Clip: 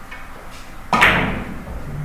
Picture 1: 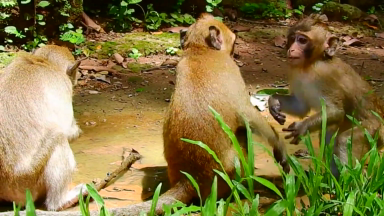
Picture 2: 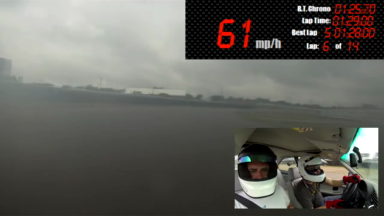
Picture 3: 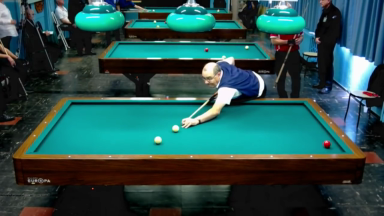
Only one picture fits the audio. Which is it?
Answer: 3